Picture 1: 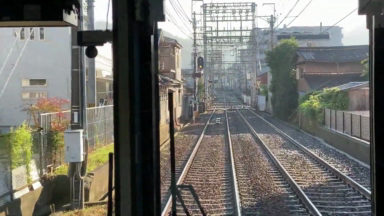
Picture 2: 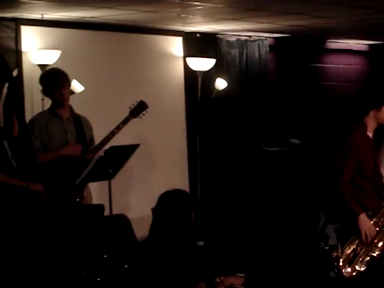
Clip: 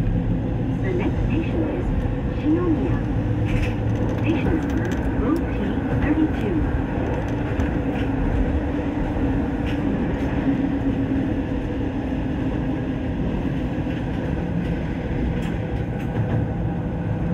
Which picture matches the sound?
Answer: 1